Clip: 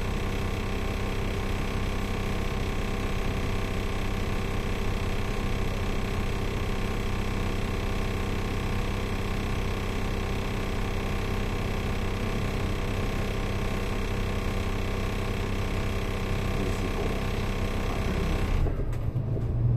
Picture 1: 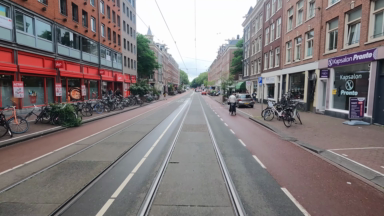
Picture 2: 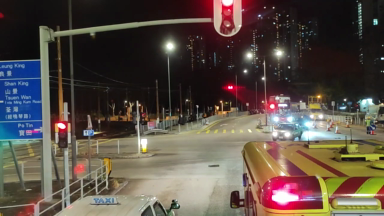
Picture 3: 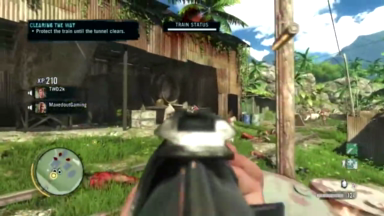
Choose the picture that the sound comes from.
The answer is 2